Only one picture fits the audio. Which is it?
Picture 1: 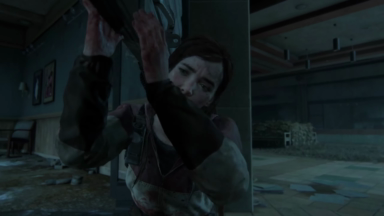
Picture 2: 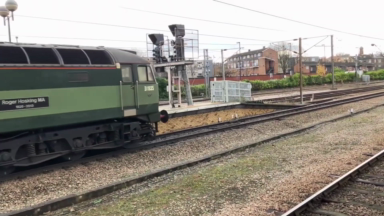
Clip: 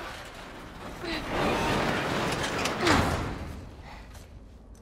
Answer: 1